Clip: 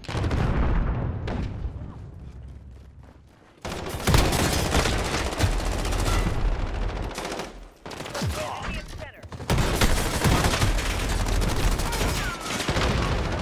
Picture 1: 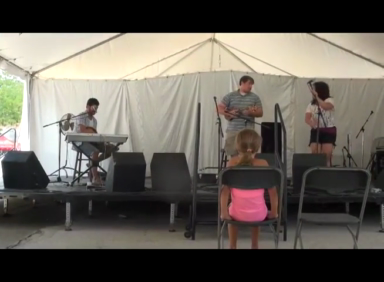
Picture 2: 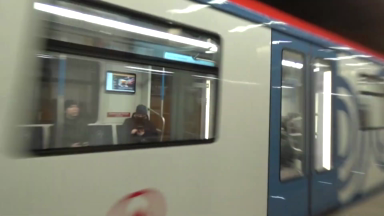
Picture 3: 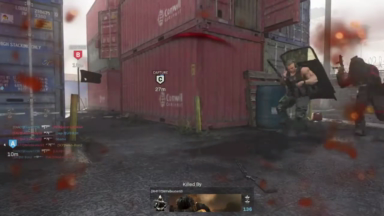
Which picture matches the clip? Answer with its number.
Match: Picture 3